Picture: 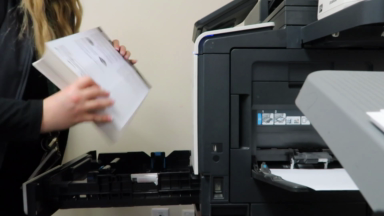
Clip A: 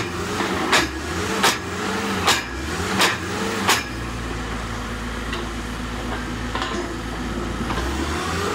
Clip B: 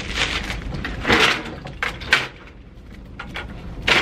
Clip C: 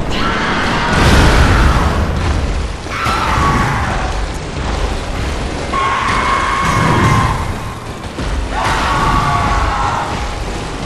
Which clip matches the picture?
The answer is B